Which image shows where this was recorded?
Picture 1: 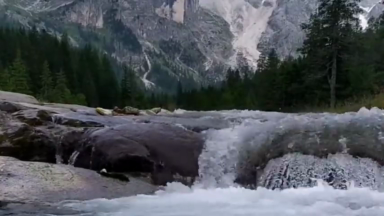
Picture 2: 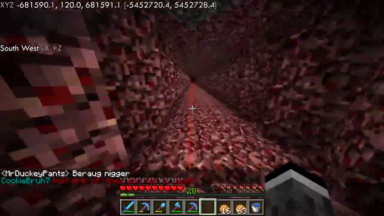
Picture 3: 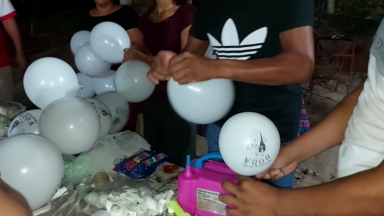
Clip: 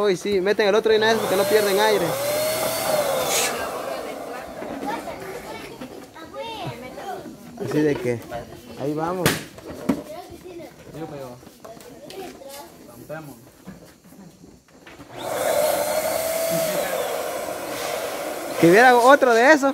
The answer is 3